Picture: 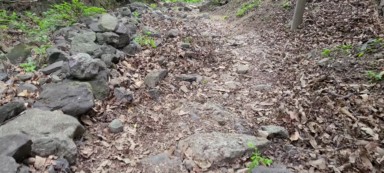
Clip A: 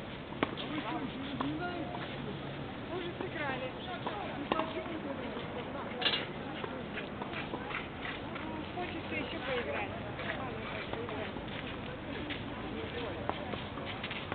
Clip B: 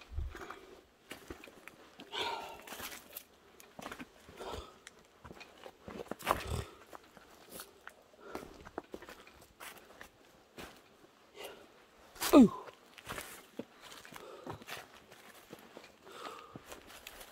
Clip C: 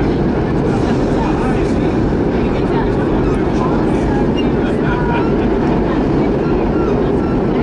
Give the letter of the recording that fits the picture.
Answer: B